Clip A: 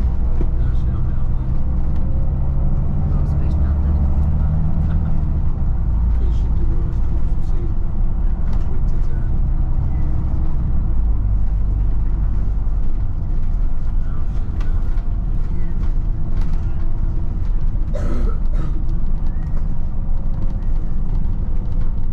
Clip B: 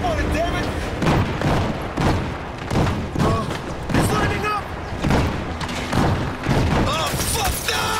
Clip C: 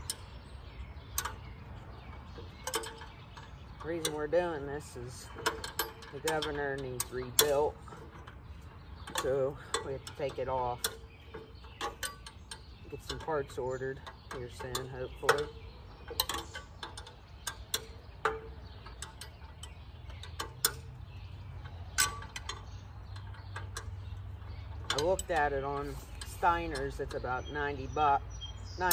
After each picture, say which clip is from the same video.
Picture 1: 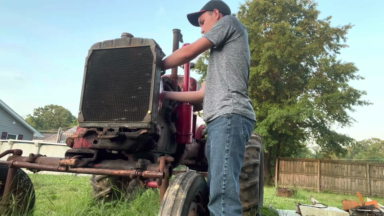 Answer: C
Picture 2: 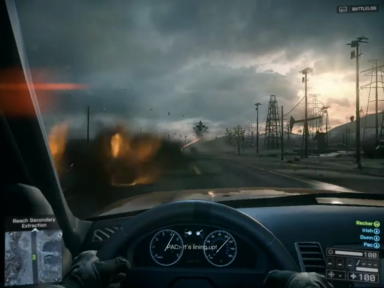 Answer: B